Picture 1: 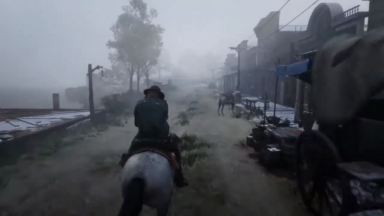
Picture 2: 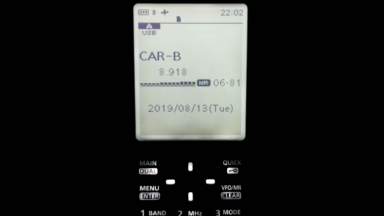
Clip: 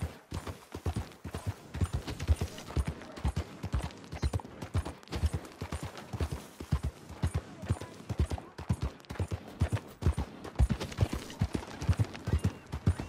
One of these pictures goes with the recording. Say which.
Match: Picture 1